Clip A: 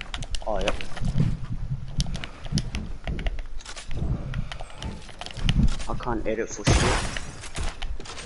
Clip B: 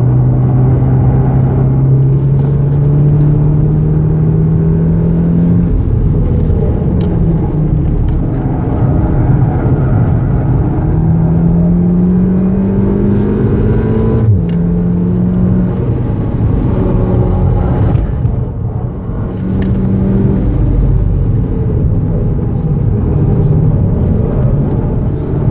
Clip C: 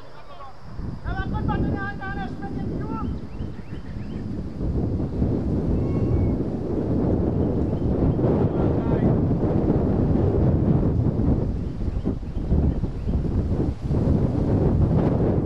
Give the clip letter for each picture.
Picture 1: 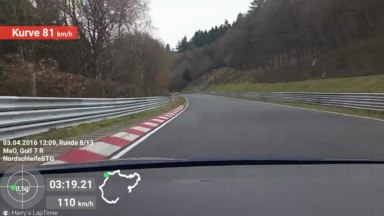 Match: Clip B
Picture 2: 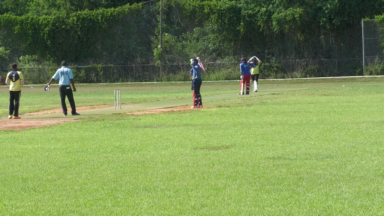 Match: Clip C